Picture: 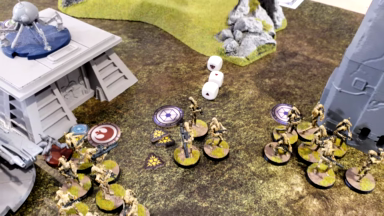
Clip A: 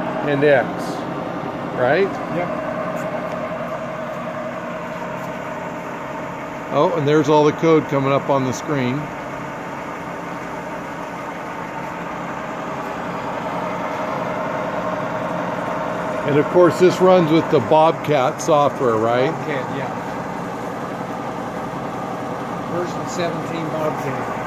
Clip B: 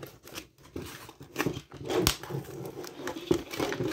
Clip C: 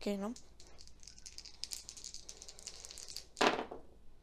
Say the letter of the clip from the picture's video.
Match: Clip C